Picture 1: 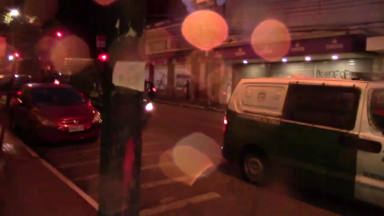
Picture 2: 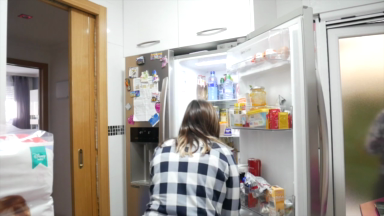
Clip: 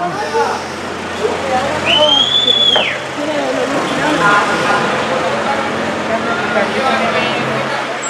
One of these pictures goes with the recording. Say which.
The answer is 1